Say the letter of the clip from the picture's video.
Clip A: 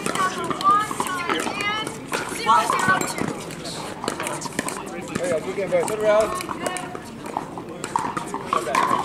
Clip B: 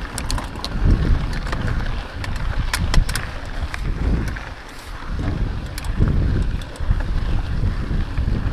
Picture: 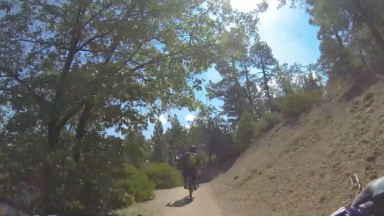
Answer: B